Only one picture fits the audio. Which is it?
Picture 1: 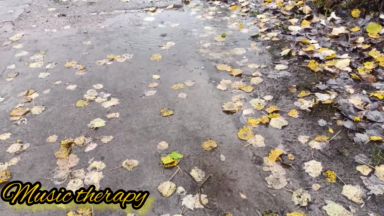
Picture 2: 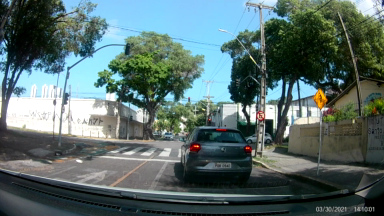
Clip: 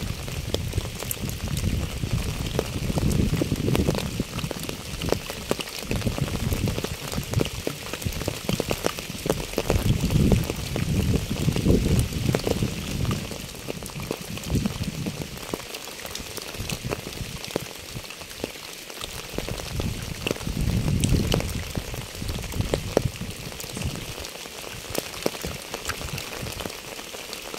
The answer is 1